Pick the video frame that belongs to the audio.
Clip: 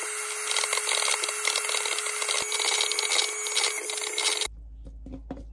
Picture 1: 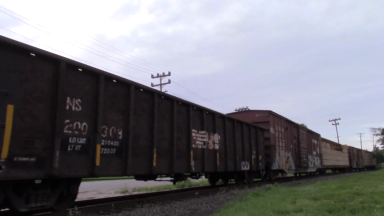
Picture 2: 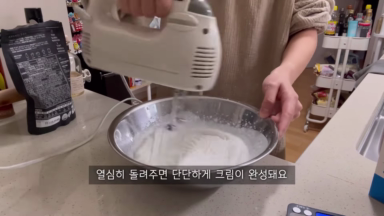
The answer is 2